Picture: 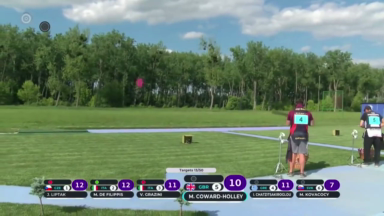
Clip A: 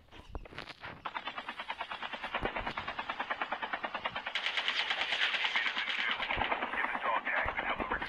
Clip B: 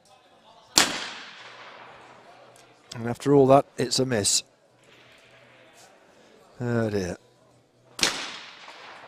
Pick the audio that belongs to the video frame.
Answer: B